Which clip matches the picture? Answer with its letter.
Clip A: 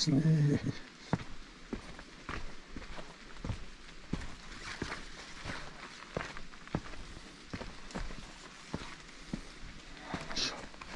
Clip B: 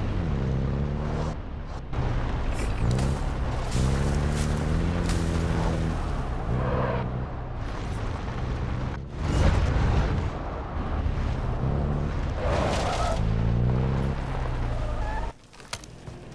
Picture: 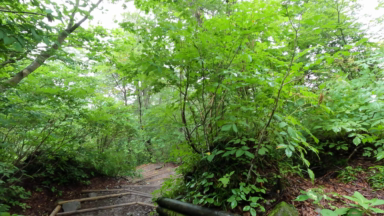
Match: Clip A